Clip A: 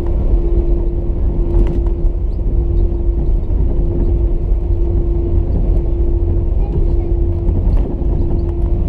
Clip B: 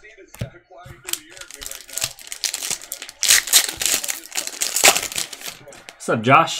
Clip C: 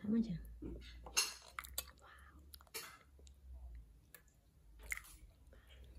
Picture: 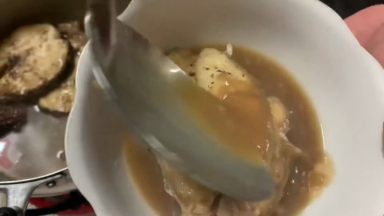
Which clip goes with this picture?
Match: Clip C